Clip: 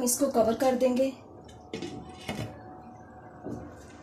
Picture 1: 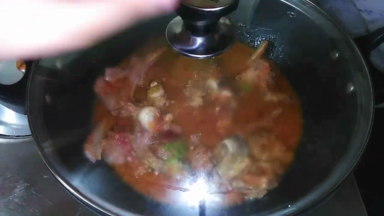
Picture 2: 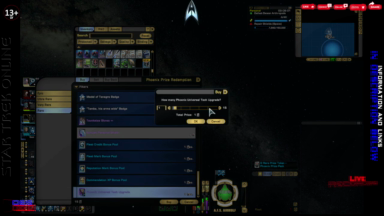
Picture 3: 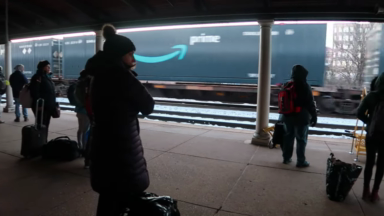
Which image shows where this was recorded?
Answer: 1